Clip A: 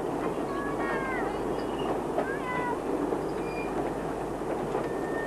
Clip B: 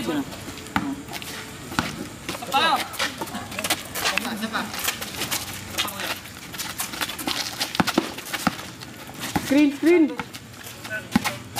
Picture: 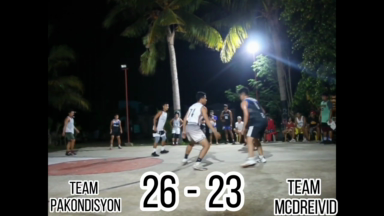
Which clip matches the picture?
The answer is B